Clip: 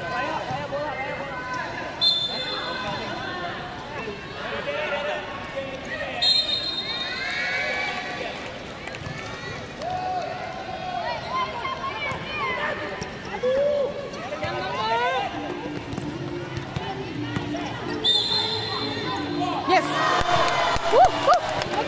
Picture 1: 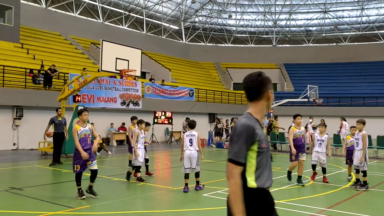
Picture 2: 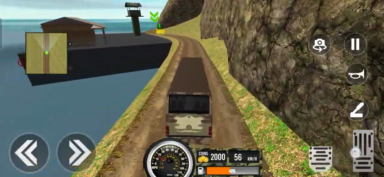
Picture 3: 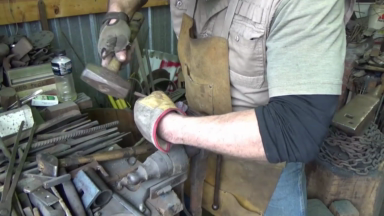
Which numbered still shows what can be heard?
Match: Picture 1